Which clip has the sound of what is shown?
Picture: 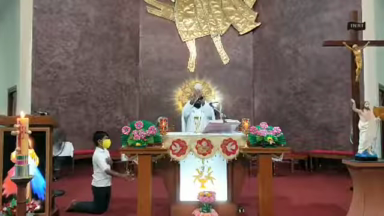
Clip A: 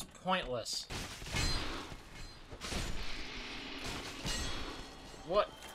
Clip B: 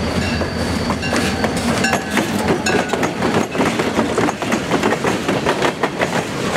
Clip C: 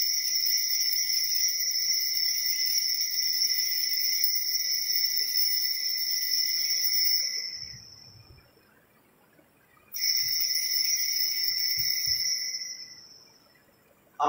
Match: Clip C